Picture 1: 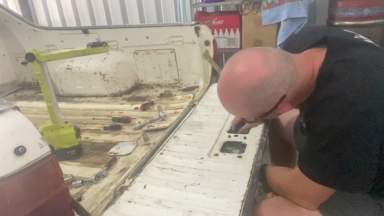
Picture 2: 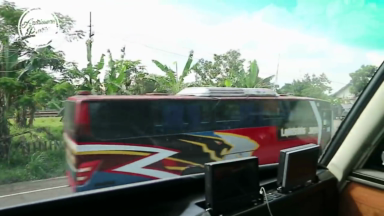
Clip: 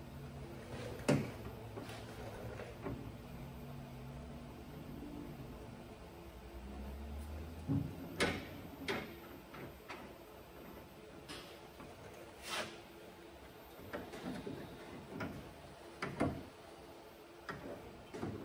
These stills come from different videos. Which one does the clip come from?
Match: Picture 1